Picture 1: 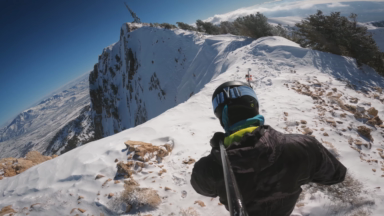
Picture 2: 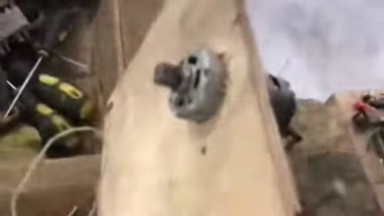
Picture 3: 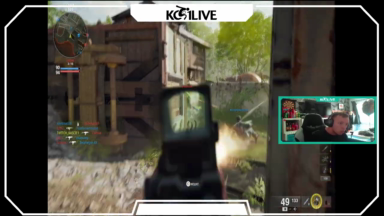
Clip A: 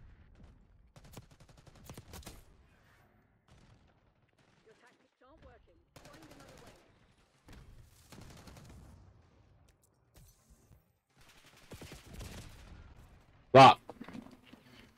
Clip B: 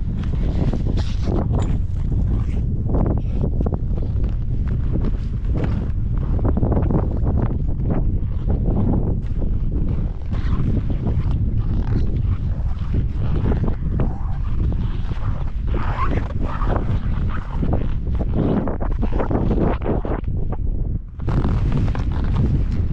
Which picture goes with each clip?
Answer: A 3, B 1